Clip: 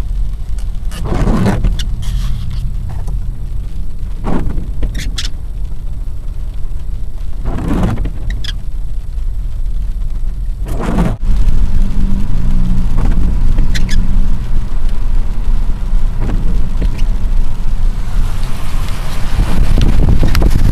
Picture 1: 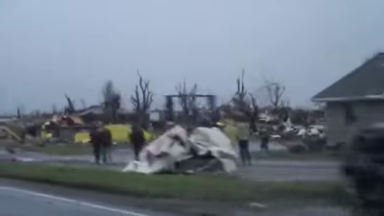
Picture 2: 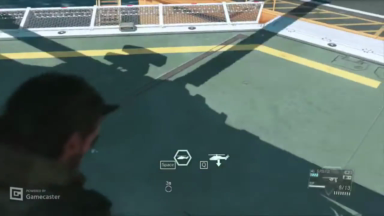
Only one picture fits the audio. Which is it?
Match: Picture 1